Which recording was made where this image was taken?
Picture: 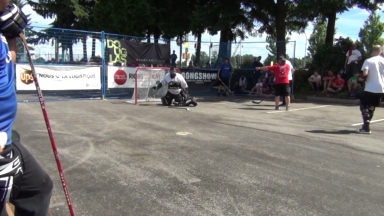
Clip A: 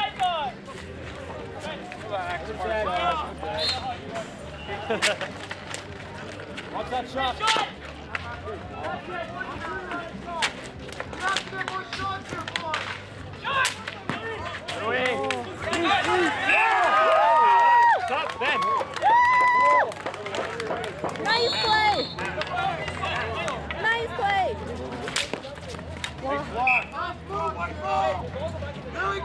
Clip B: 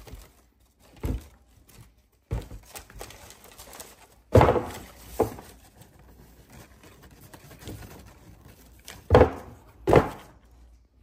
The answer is A